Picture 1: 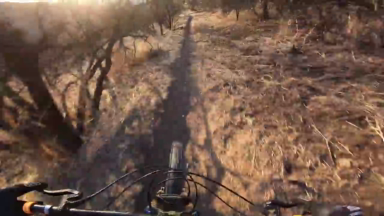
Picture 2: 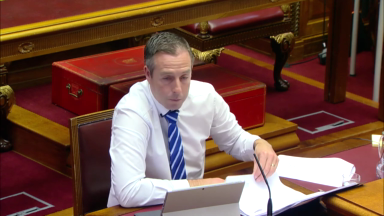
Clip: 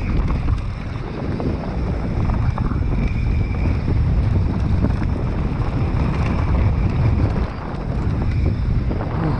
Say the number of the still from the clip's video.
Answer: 1